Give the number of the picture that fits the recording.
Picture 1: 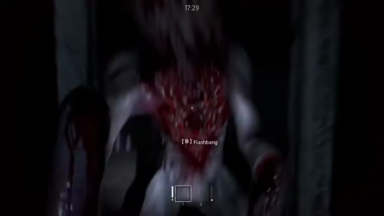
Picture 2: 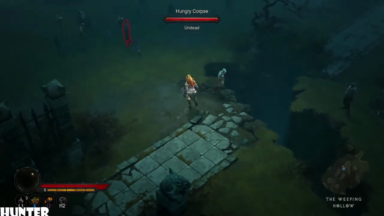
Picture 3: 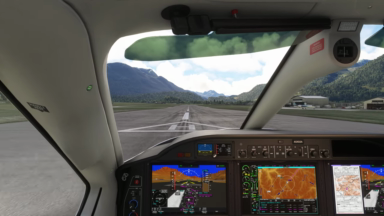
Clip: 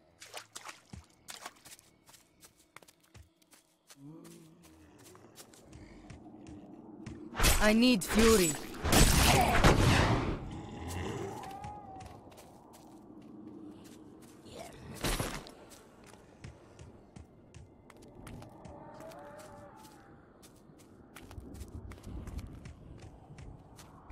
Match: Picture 2